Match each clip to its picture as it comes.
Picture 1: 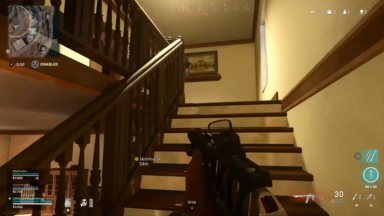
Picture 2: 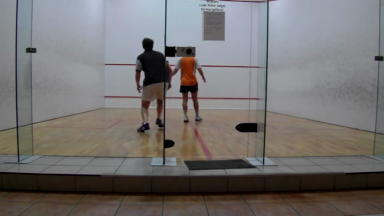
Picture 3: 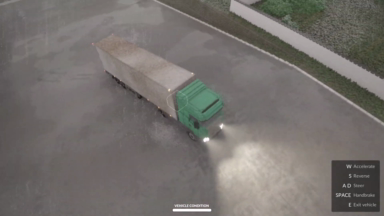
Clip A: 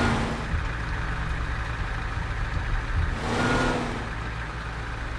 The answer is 3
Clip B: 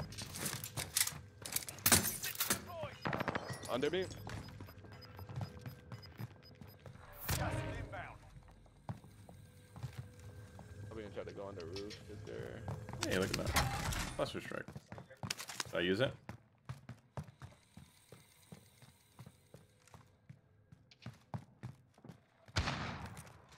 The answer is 1